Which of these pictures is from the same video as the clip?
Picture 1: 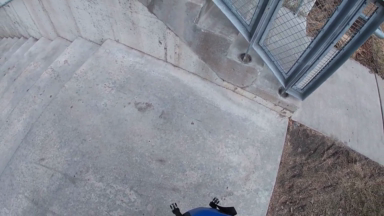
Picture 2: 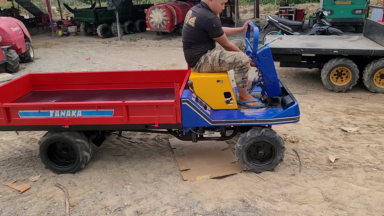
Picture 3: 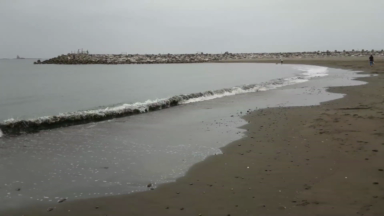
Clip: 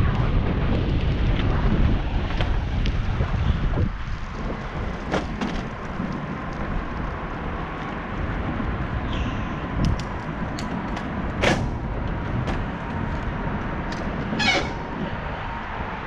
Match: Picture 1